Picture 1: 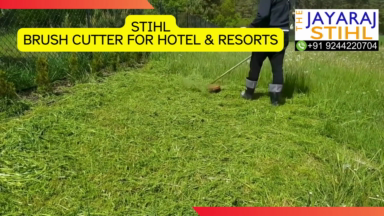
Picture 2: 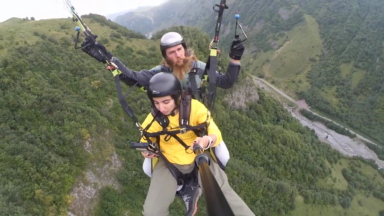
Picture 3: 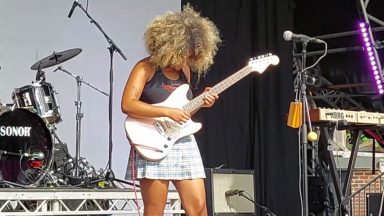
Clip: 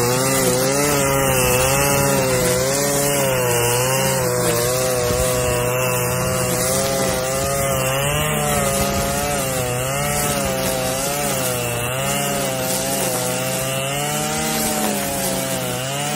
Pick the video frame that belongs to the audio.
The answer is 1